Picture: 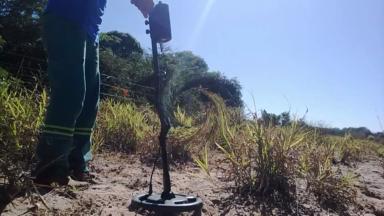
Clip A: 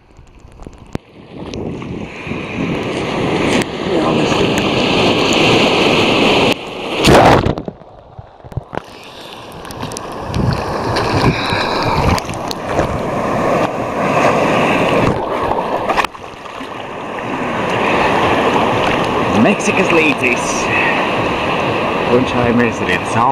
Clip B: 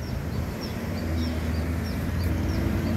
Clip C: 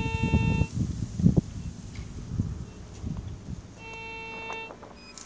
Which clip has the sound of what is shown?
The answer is C